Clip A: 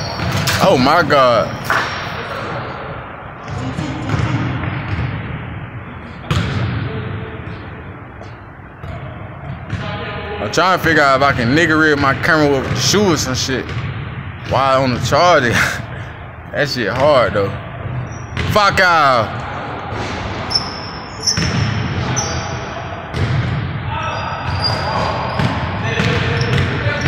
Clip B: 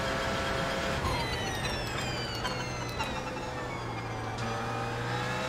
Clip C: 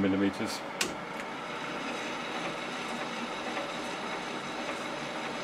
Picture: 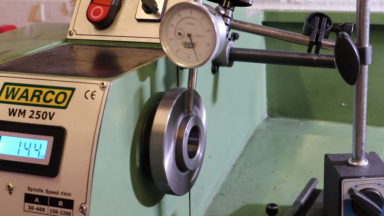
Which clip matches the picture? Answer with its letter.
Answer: C